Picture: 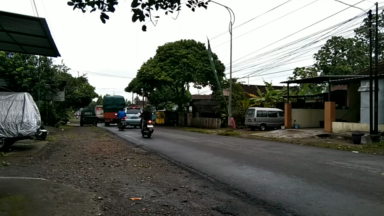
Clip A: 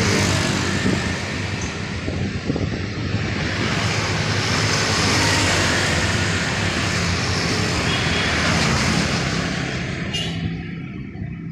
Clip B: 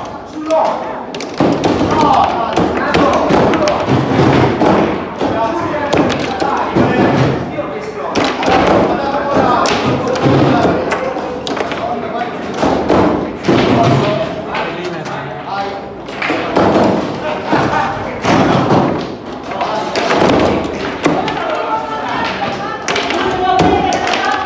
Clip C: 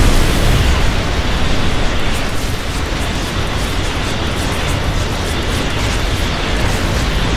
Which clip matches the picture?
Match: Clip A